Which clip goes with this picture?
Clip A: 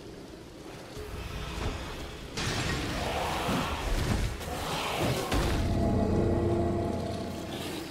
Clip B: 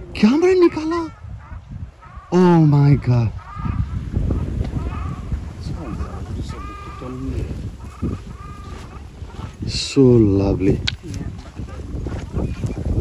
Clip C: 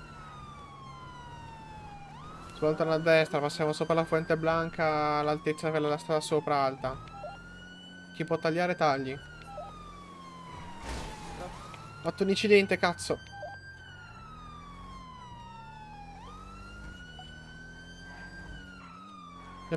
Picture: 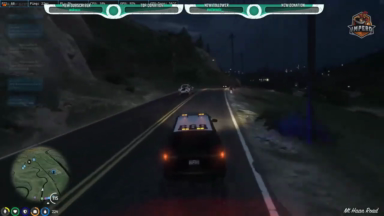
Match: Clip C